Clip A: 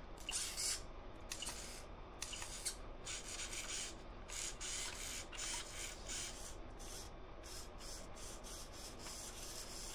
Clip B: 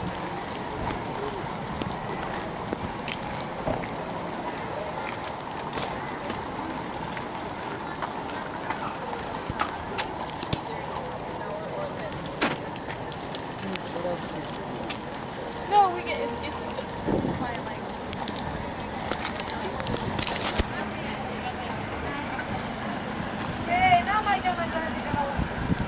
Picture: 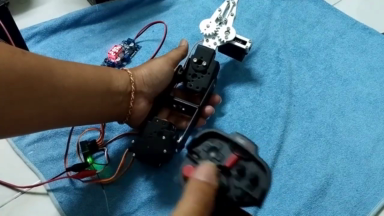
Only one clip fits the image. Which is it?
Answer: A